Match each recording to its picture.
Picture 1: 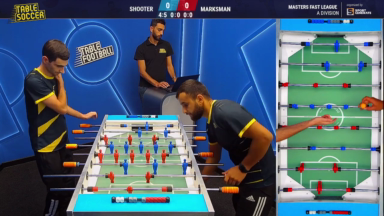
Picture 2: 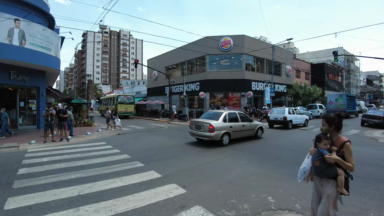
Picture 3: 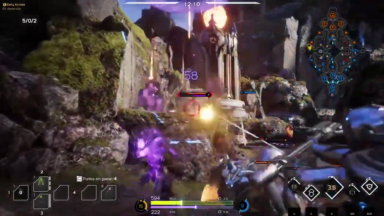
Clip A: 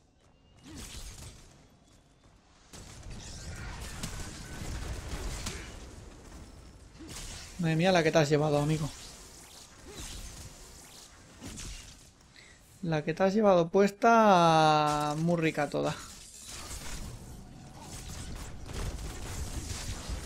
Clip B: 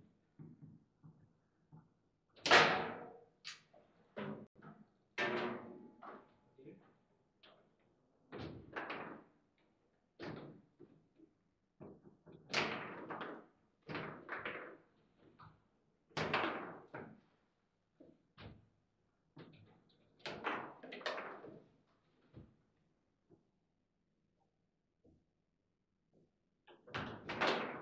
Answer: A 3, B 1